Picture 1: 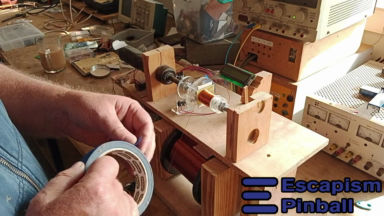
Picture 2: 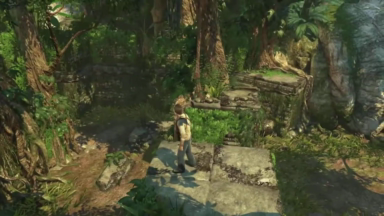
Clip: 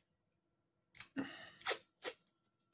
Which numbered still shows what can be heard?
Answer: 1